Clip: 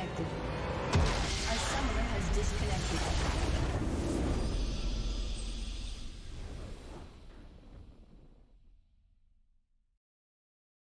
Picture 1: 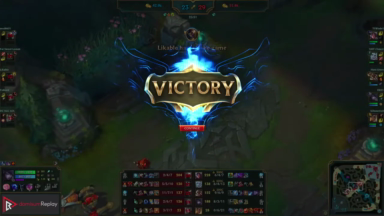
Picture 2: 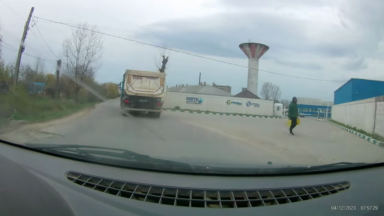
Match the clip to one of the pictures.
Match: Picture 1